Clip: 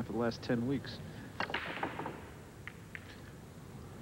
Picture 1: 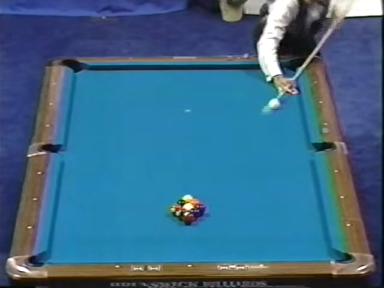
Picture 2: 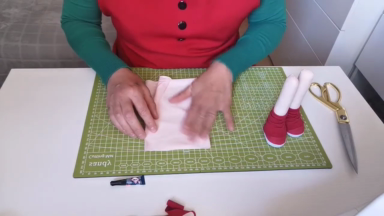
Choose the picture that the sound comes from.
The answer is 1